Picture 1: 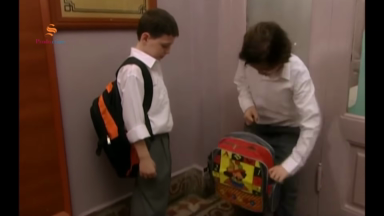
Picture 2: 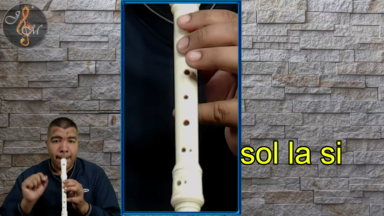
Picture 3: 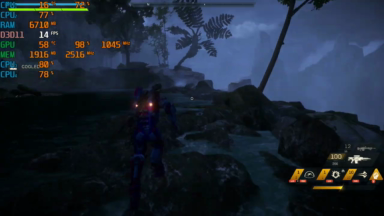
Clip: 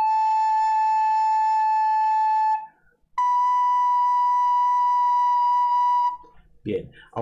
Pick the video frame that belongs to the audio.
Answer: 2